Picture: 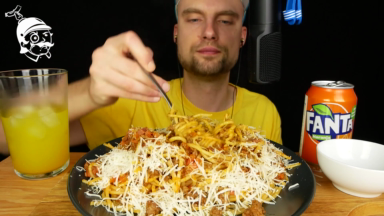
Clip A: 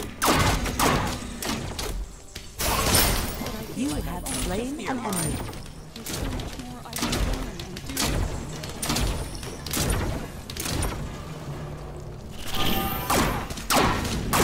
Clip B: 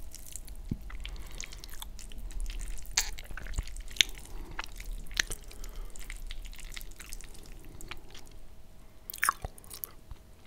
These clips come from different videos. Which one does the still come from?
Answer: B